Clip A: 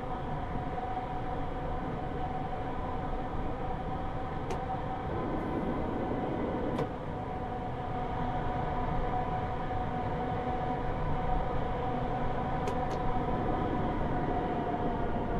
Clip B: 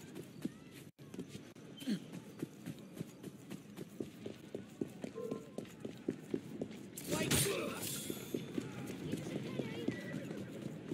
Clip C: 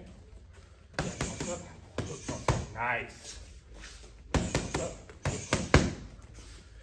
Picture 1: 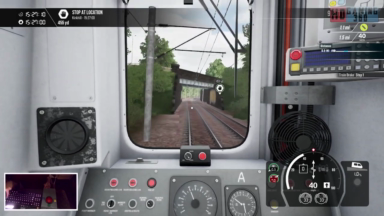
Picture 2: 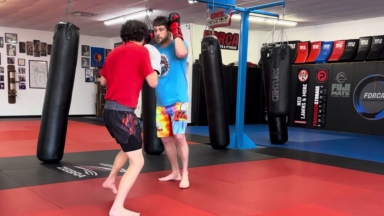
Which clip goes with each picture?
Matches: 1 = A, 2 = C